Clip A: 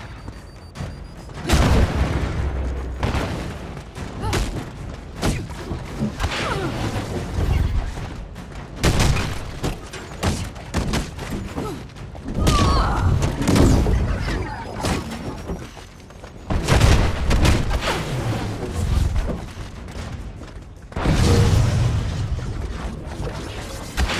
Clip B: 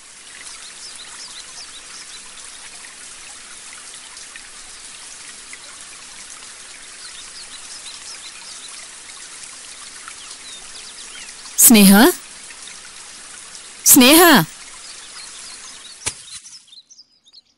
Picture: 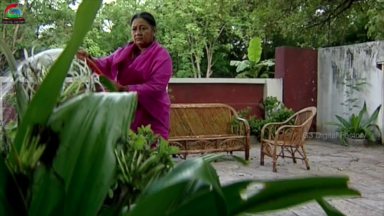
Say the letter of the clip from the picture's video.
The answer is B